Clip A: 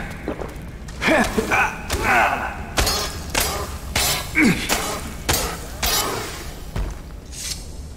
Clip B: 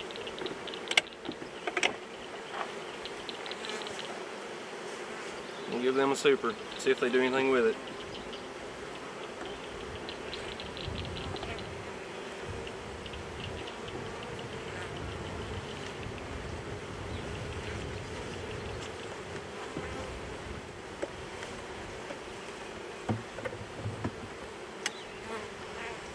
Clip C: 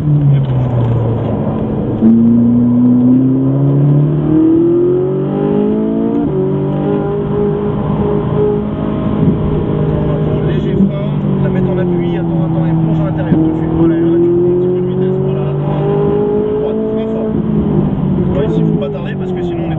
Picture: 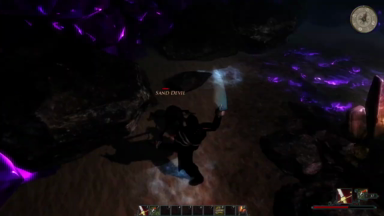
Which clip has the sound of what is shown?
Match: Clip A